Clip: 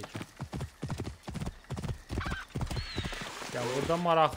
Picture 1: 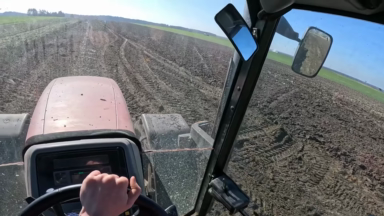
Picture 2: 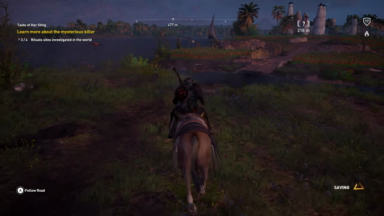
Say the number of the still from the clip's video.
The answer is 2